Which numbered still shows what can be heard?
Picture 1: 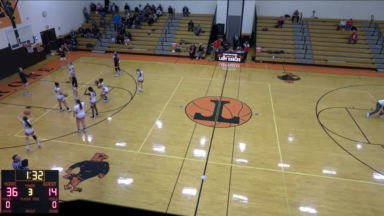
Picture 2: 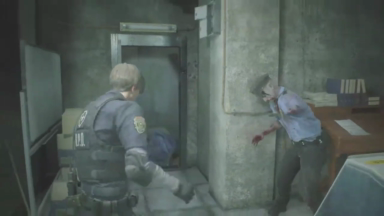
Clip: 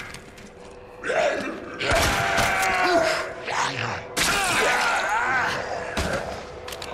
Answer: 2